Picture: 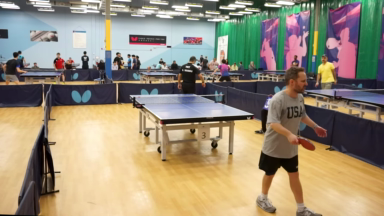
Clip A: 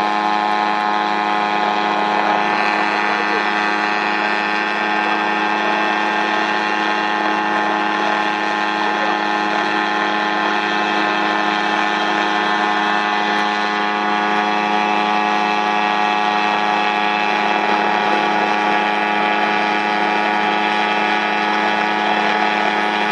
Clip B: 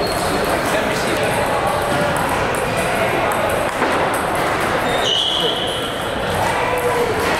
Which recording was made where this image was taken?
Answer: B